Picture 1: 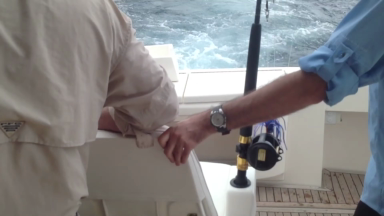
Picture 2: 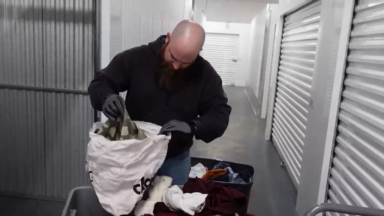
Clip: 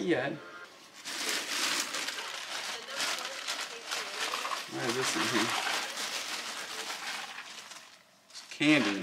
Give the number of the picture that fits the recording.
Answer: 2